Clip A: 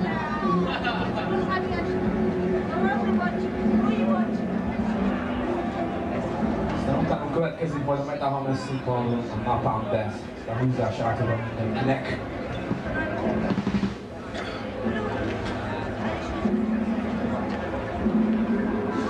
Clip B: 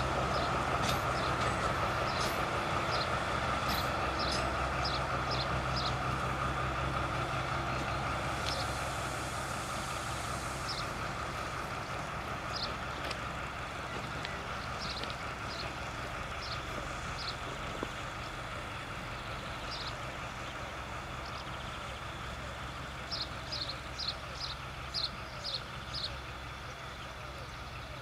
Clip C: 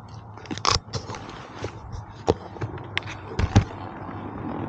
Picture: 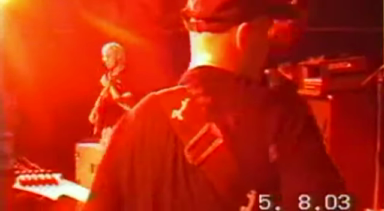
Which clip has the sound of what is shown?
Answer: A